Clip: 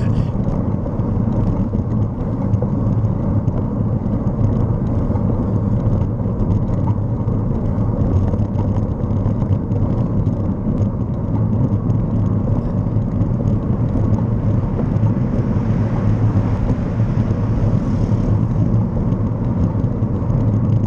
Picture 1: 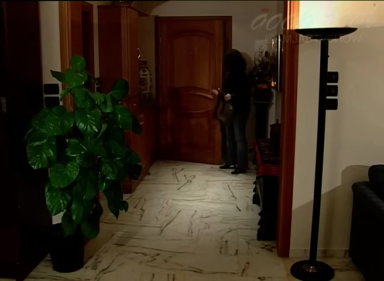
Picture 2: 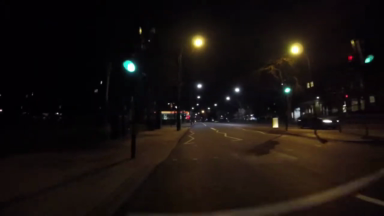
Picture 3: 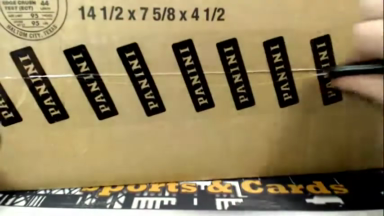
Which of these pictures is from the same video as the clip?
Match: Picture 2